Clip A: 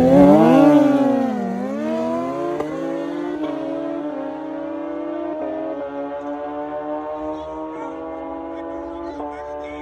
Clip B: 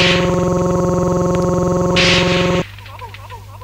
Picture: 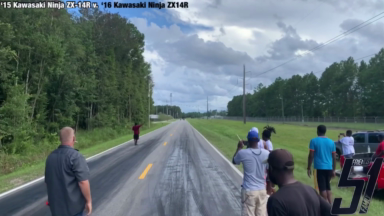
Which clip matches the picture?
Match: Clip A